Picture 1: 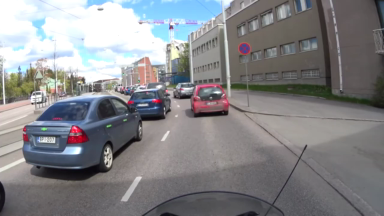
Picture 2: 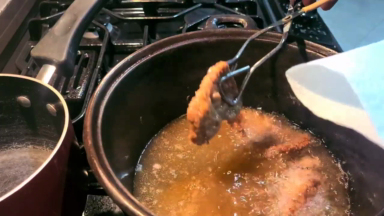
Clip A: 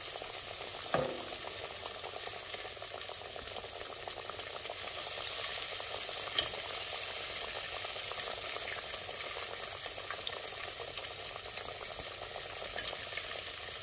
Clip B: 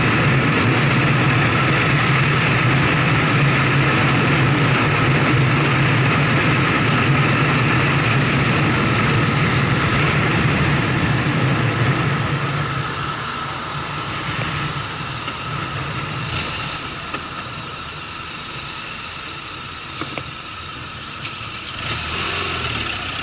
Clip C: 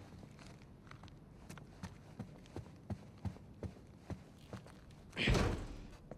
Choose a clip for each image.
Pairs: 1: B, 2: A